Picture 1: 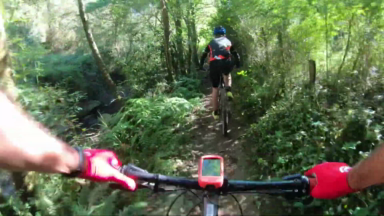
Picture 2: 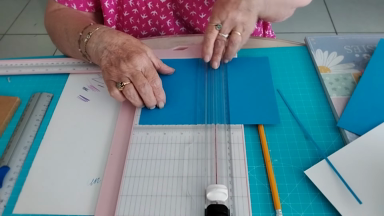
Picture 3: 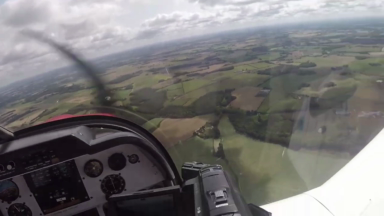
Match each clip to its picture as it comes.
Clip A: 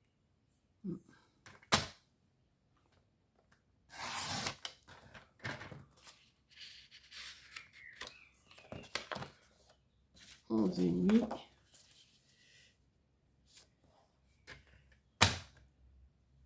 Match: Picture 2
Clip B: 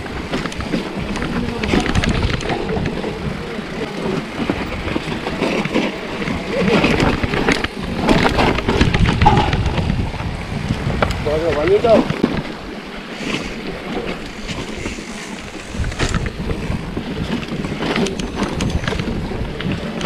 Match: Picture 1